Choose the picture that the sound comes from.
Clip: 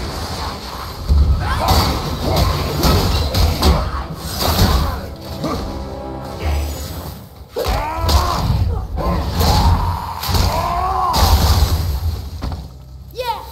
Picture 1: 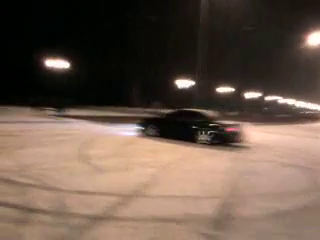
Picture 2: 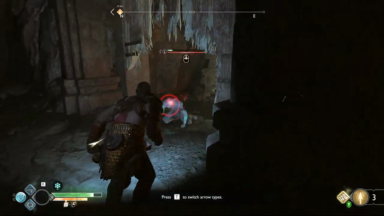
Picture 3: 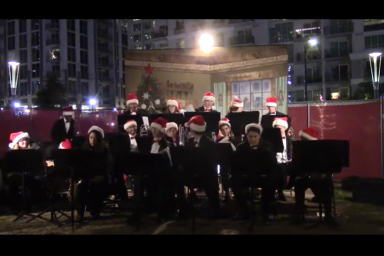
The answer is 2